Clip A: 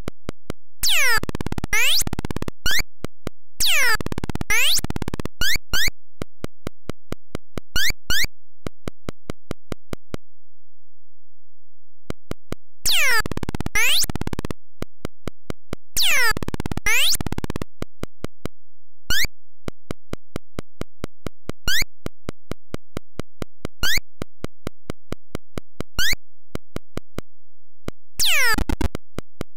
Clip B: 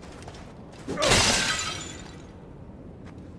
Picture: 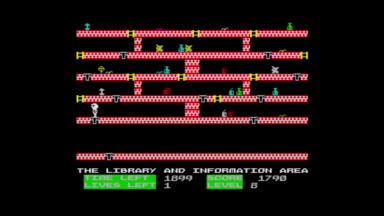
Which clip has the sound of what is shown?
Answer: A